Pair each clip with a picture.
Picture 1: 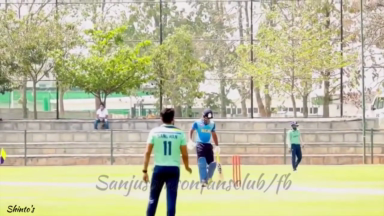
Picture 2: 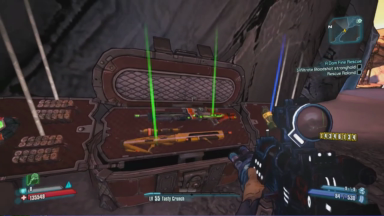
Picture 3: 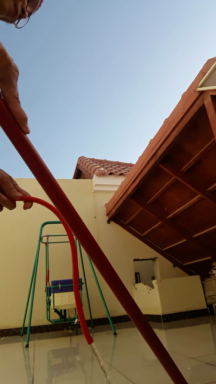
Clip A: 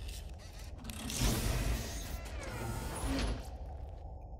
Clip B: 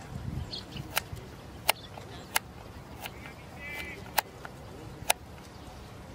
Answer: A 2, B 1